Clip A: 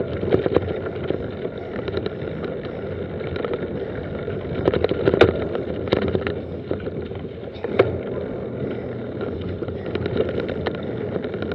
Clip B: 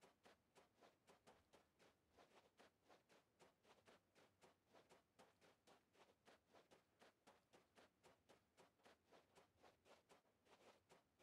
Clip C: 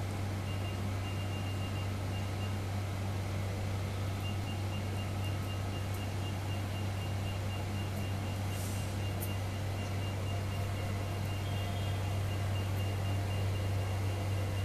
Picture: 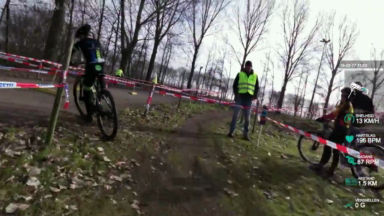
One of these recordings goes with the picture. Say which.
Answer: A